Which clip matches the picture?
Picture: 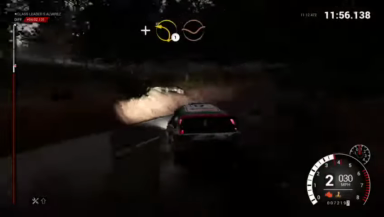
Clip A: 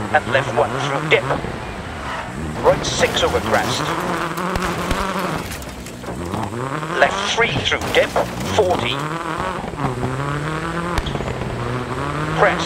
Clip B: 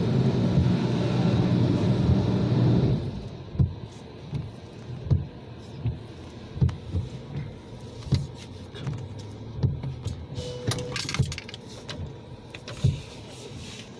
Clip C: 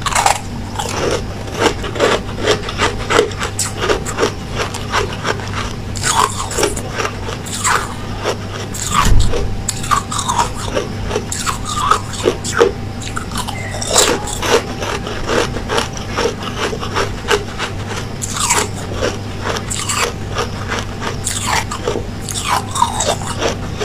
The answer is A